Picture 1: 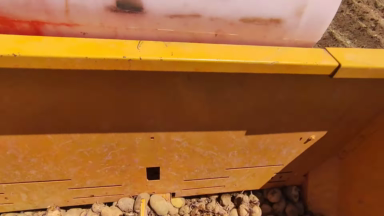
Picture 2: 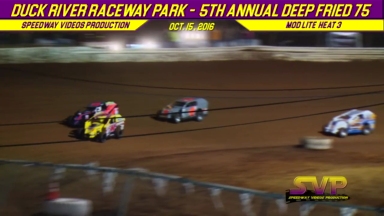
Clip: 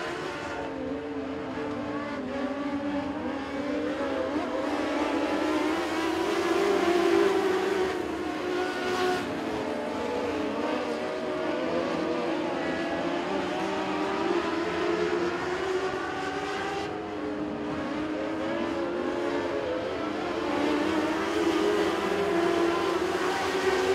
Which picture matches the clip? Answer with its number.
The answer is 2